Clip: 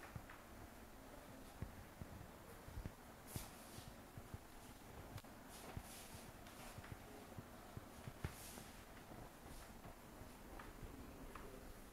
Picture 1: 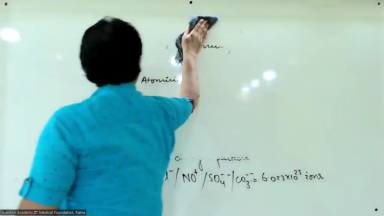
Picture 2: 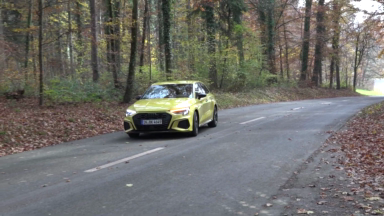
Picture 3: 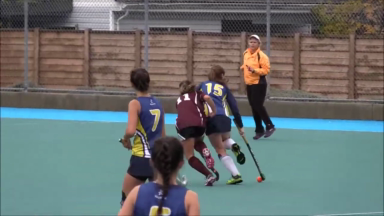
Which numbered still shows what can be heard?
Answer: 1